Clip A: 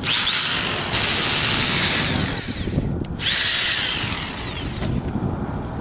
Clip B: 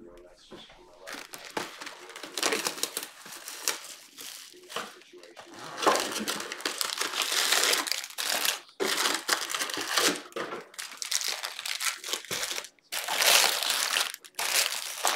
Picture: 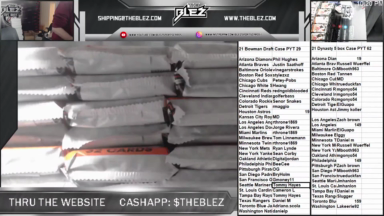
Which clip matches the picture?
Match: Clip B